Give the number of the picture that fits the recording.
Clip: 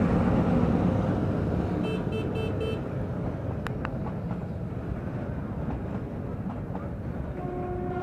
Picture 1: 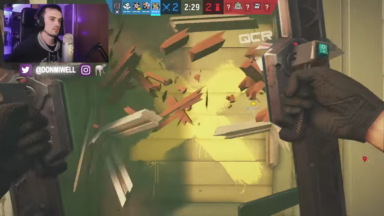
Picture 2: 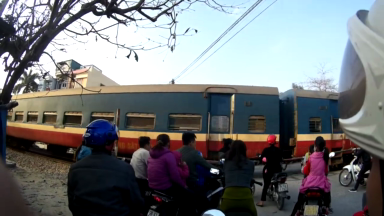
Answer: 2